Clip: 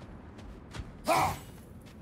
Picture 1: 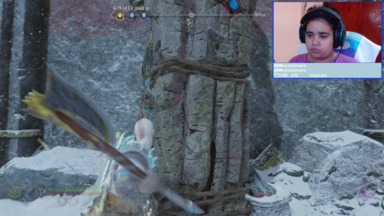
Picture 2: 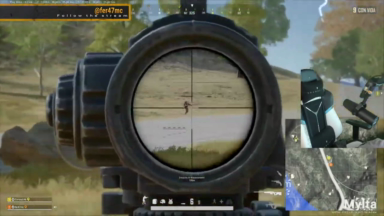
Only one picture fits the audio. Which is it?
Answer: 1